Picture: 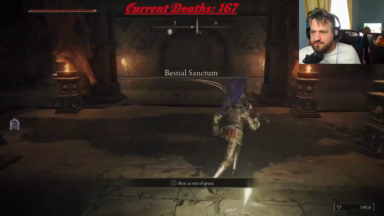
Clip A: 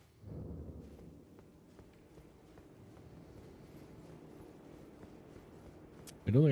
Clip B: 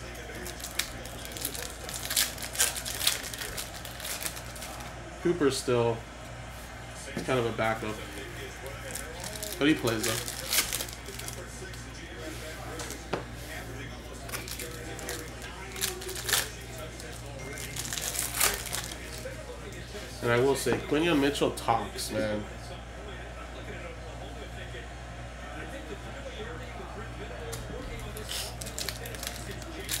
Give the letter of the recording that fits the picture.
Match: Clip A